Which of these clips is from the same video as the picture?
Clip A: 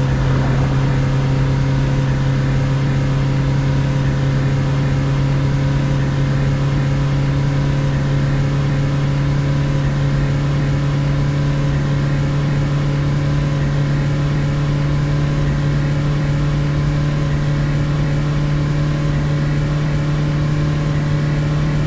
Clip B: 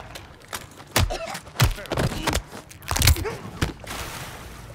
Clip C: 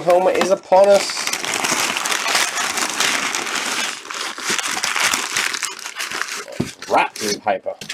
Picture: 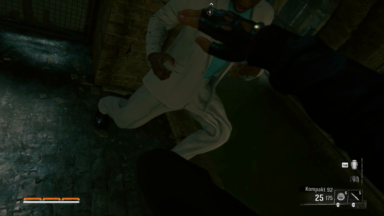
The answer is B